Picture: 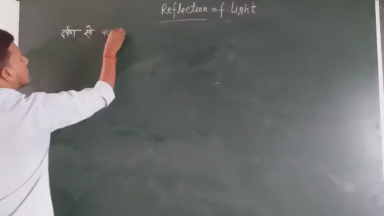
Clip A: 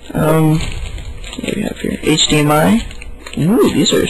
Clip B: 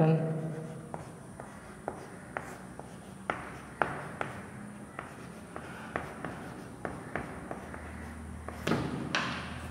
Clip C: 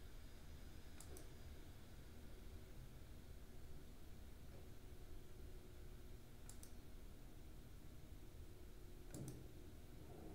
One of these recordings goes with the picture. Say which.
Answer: B